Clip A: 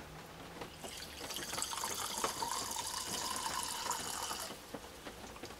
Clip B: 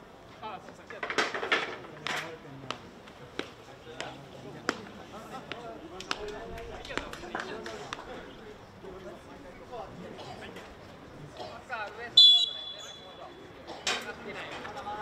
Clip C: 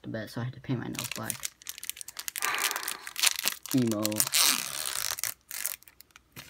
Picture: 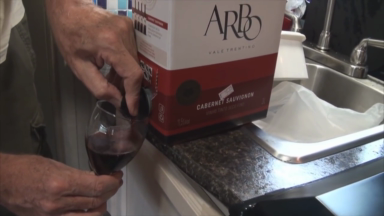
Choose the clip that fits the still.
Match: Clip A